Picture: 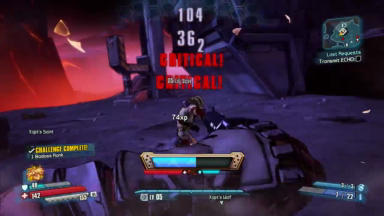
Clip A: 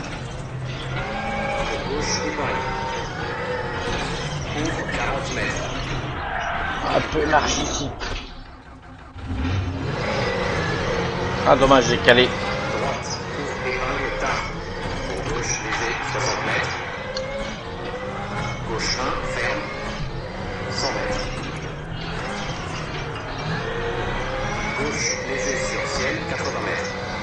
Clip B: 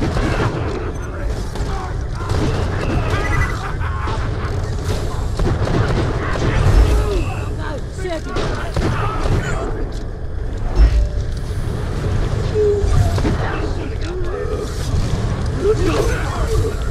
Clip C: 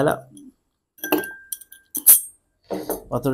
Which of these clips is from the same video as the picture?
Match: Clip B